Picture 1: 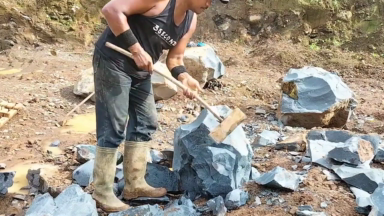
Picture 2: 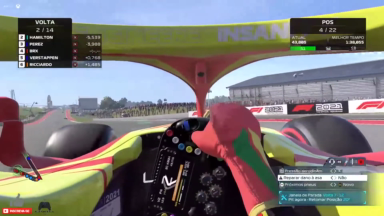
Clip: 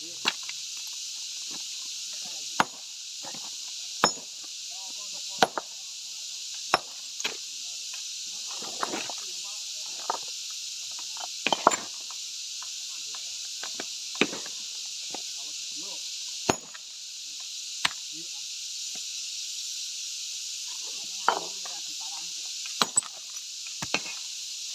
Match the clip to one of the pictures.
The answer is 1